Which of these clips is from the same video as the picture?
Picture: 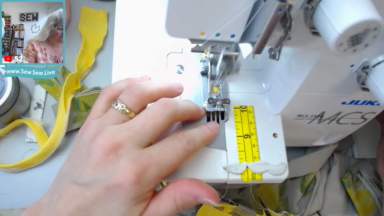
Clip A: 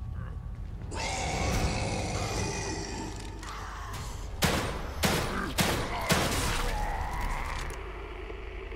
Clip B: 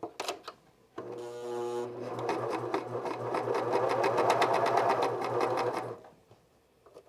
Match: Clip B